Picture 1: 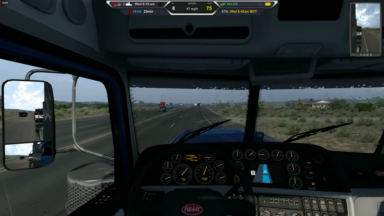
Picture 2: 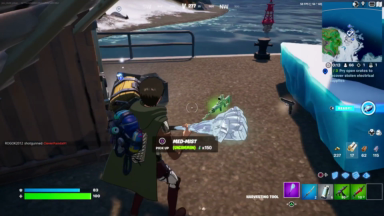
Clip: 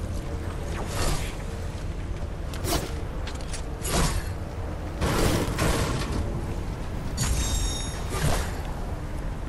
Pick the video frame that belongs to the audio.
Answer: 2